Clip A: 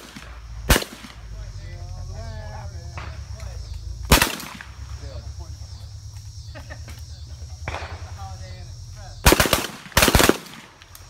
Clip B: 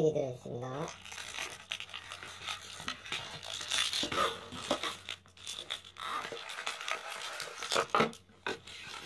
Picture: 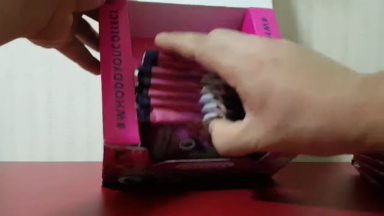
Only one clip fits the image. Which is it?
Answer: B